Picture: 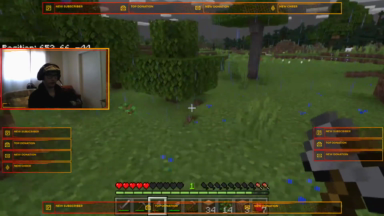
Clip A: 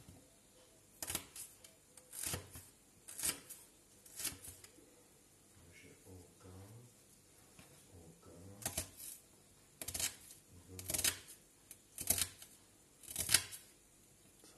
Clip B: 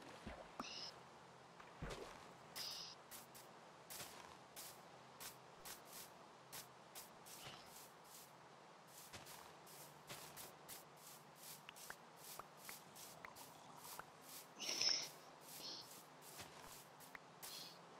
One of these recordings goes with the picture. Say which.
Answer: B